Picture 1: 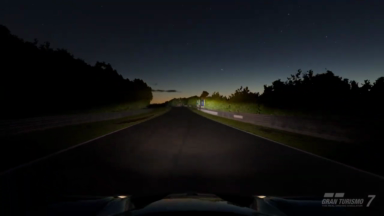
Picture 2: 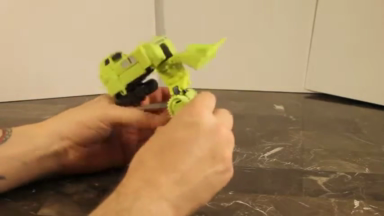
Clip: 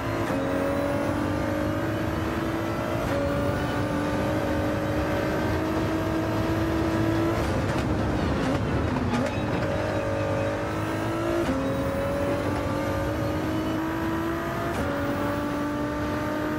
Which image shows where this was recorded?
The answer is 1